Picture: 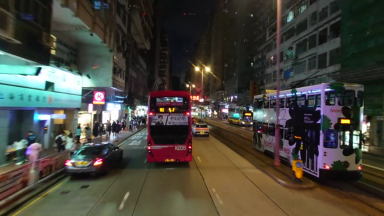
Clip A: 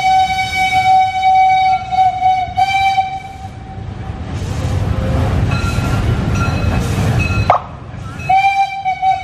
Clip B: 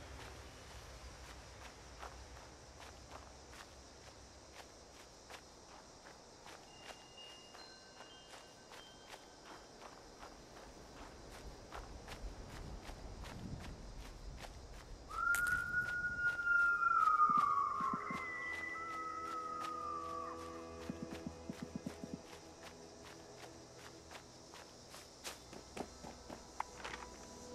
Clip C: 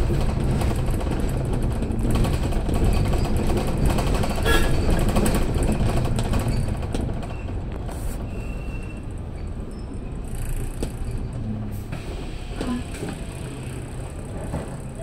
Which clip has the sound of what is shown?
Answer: C